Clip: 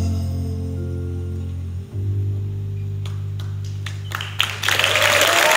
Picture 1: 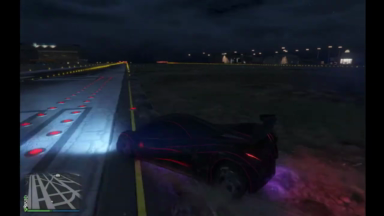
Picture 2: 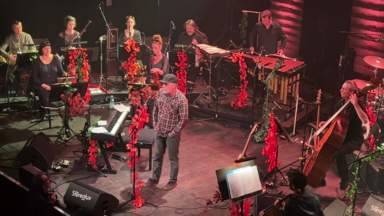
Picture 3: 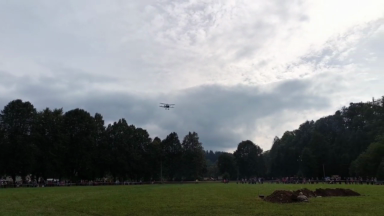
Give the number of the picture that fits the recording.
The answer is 2